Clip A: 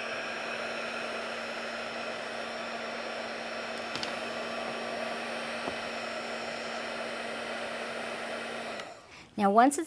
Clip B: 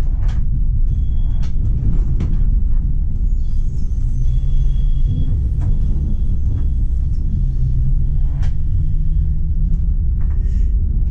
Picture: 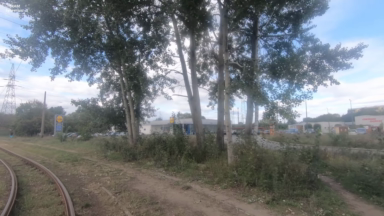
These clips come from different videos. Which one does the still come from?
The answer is B